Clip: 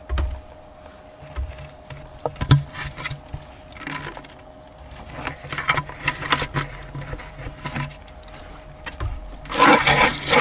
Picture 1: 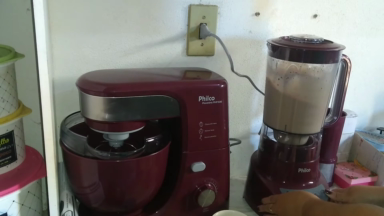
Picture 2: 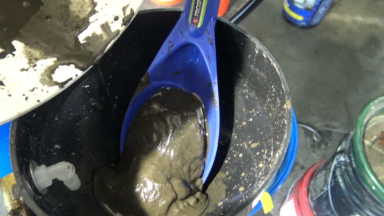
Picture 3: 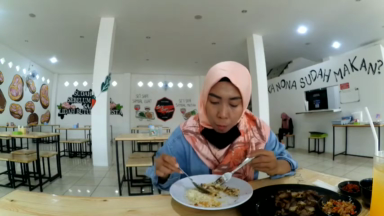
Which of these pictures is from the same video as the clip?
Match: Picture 2